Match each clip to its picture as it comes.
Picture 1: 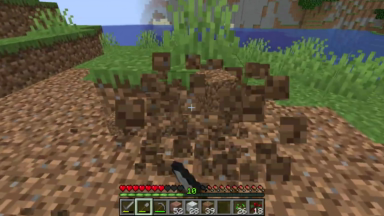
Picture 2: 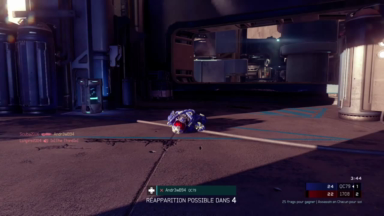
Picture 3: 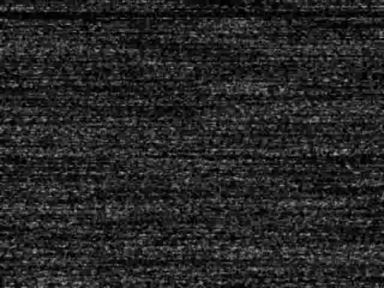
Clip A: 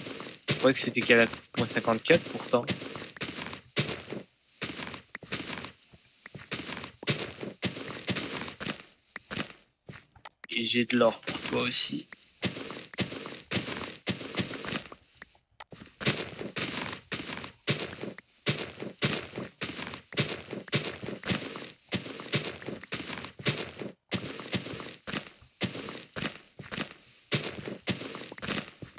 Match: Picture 1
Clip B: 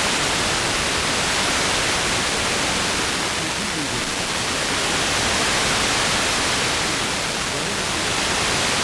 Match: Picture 3